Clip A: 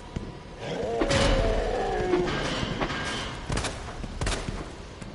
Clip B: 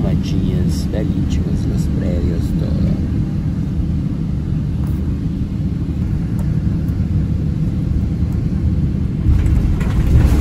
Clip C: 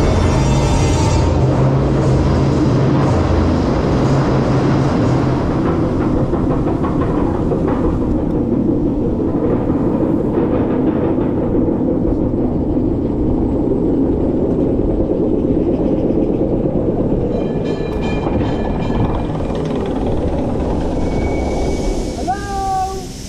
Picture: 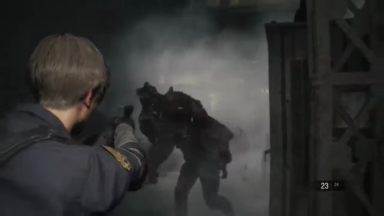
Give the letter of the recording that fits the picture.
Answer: A